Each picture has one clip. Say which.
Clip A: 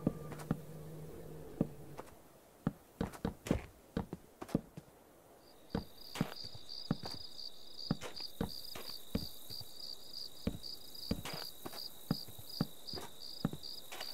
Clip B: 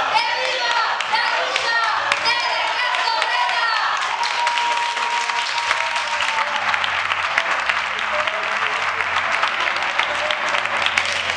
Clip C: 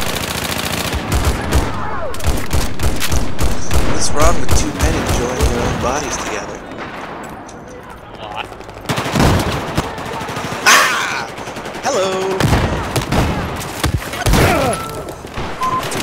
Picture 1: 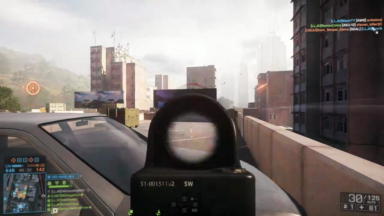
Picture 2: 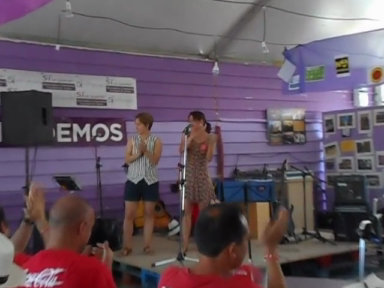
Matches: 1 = C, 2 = B